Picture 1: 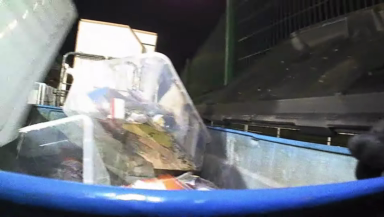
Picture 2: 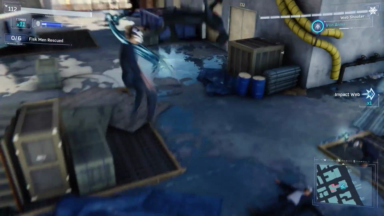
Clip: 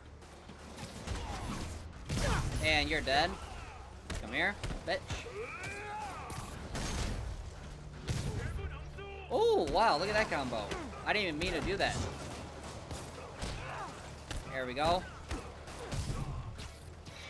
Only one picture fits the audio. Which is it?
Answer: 2